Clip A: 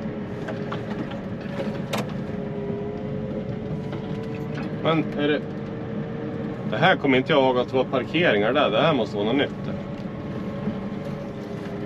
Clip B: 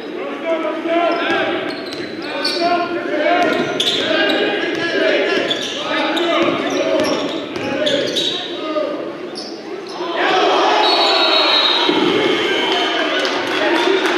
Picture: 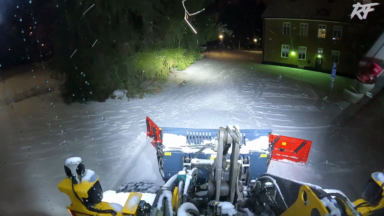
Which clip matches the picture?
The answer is A